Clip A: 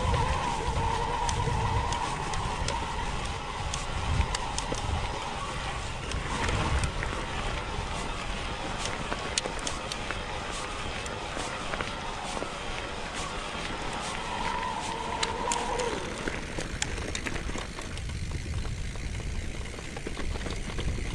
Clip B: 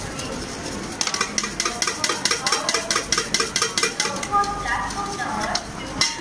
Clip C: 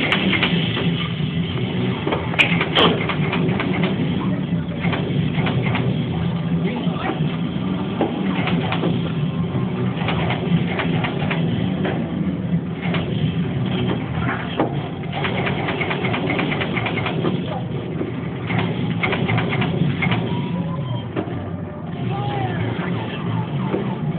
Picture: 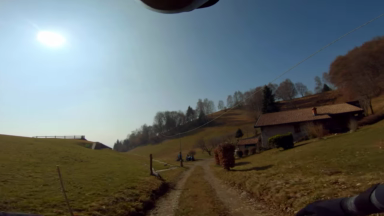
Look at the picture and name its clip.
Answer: A